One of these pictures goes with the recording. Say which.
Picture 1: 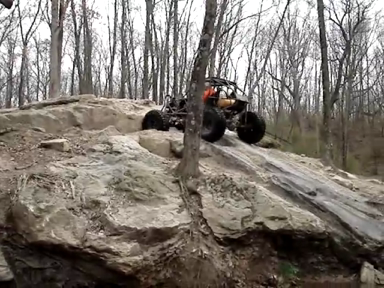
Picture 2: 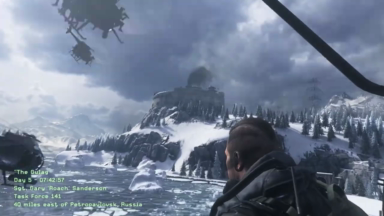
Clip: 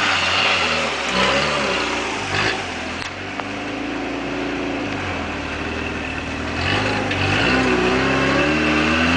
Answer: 1